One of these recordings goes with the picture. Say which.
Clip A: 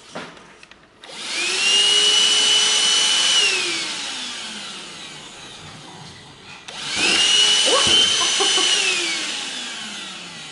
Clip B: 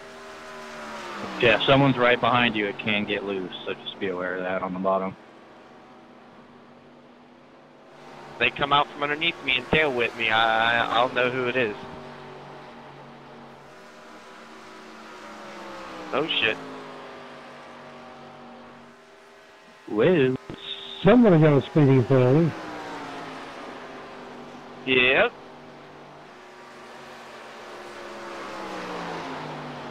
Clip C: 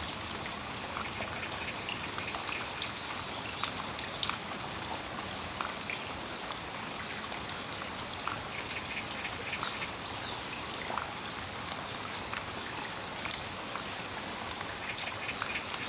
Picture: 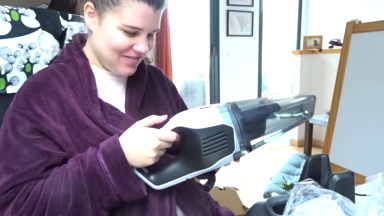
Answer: A